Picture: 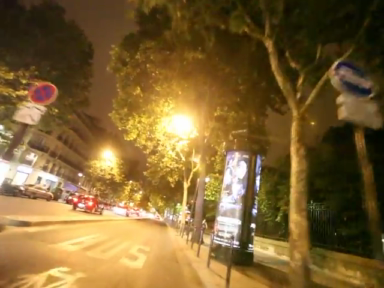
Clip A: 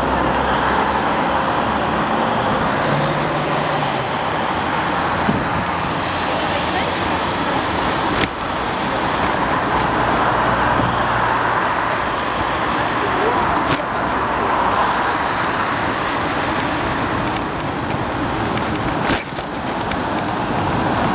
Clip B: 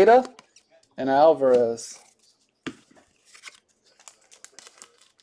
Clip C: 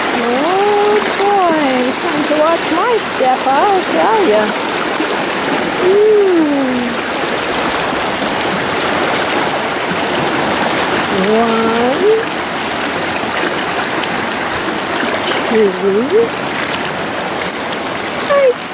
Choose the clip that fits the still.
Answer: A